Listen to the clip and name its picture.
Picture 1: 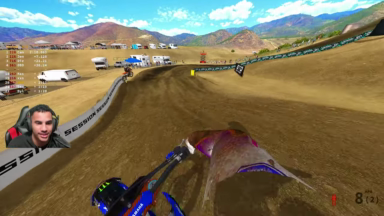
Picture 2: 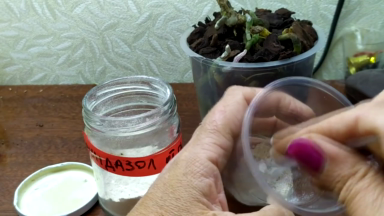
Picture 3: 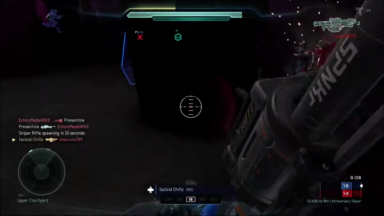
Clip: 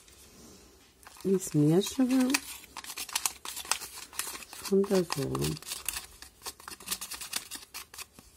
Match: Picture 2